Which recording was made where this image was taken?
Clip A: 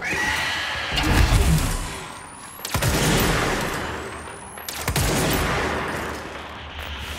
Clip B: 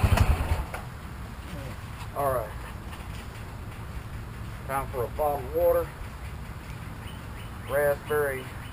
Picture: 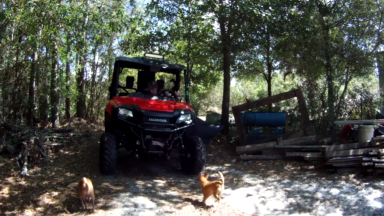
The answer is B